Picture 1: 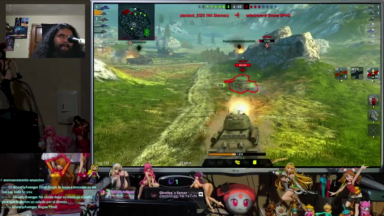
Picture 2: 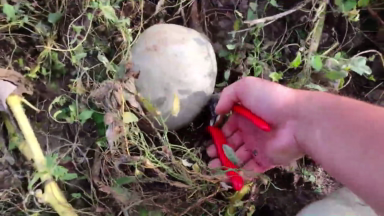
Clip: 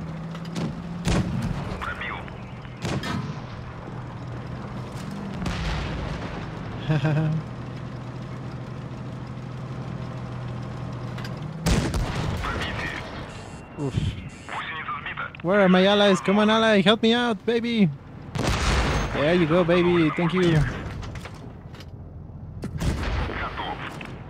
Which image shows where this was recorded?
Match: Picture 1